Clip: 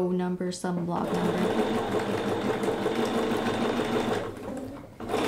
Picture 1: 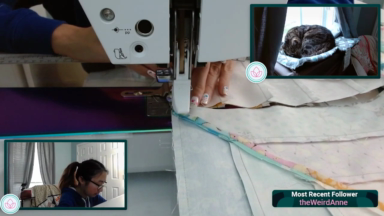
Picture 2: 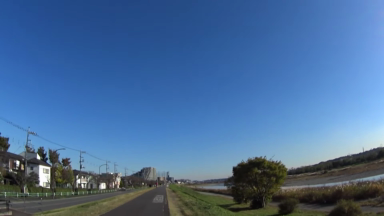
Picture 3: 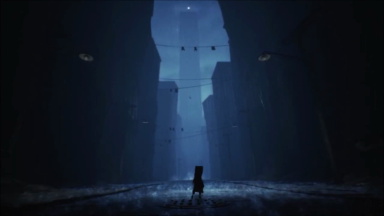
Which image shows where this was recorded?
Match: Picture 1